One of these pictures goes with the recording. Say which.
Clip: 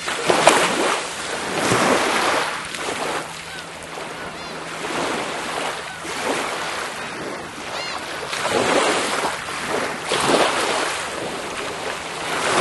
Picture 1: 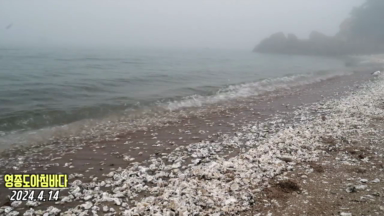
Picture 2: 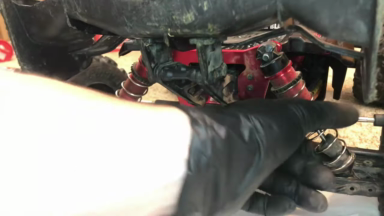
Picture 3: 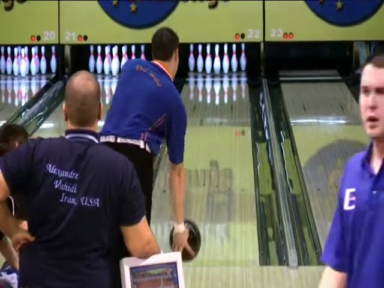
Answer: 1